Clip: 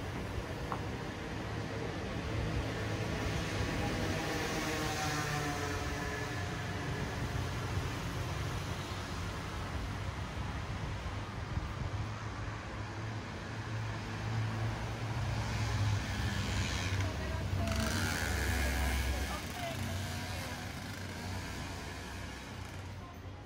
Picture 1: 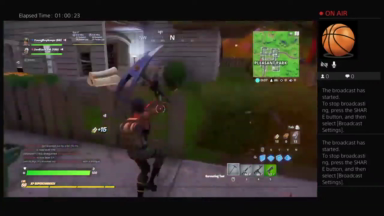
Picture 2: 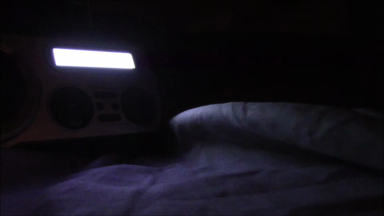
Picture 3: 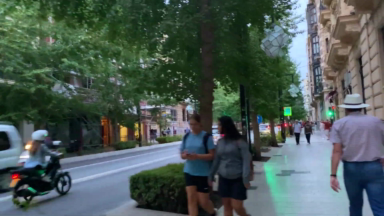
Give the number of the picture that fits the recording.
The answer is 3